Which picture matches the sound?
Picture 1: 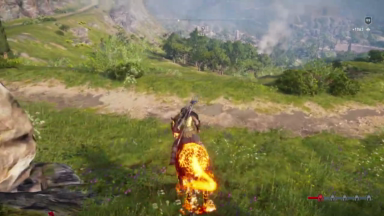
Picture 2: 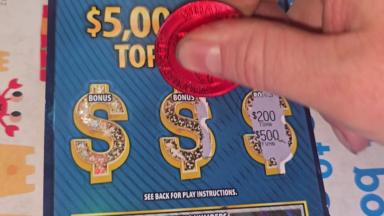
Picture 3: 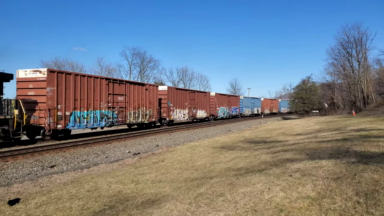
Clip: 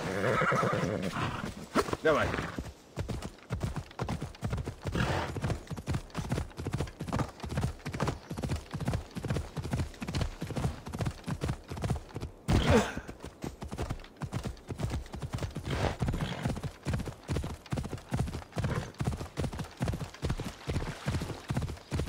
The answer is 1